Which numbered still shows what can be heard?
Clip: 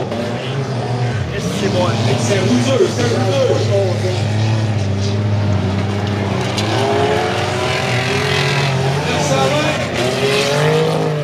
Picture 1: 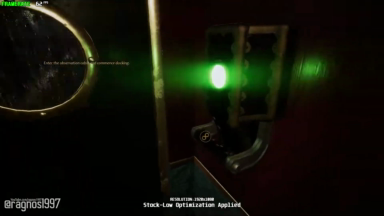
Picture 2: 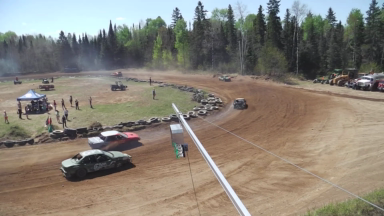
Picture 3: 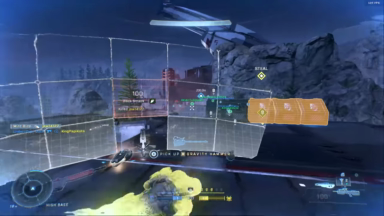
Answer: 2